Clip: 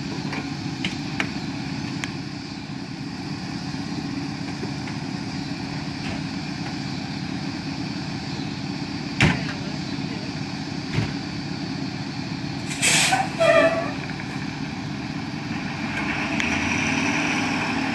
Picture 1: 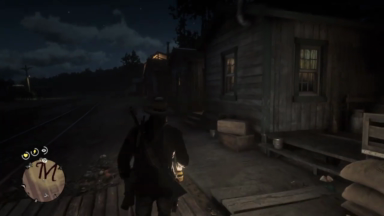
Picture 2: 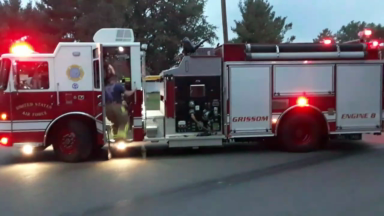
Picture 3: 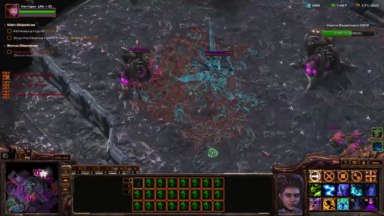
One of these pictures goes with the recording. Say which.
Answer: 2